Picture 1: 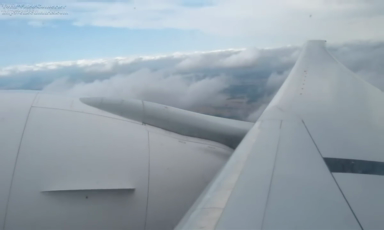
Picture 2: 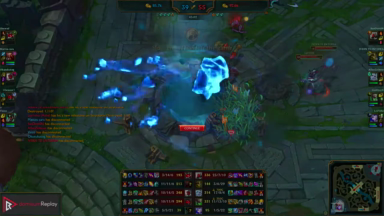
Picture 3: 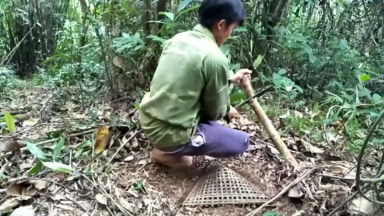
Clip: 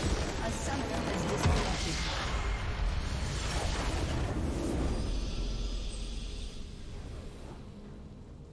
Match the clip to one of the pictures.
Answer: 2